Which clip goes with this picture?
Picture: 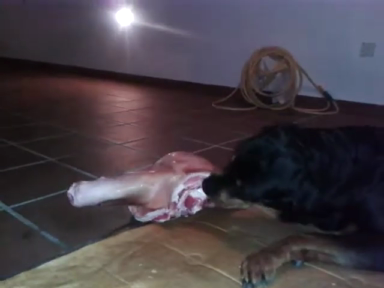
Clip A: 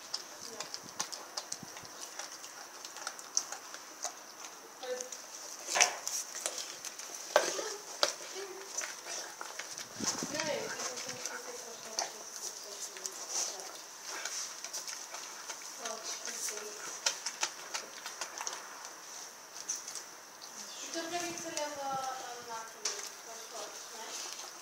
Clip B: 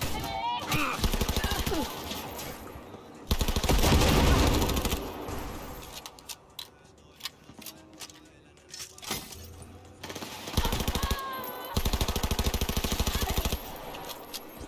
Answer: A